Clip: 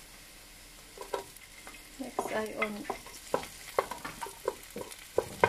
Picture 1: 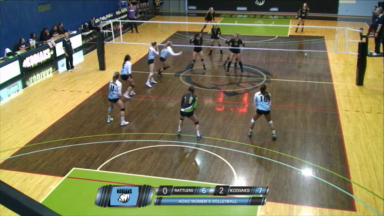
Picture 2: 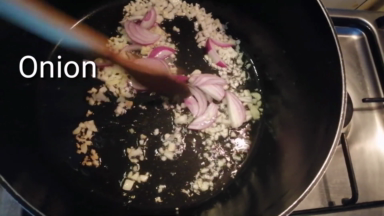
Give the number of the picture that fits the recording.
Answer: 2